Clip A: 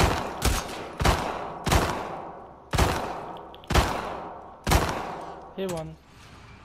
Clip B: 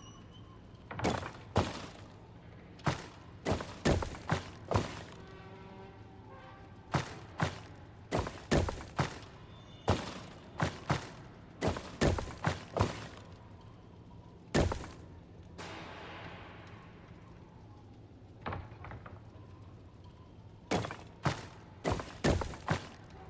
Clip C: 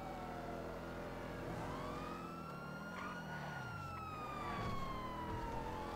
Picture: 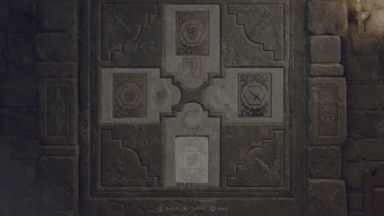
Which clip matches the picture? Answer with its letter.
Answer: B